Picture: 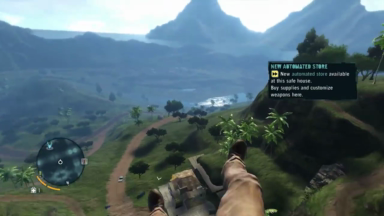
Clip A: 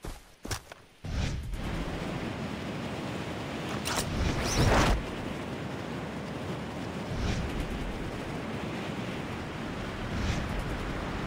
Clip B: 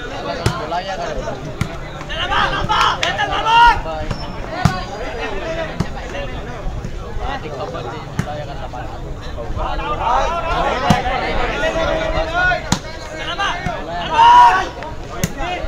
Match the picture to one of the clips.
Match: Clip A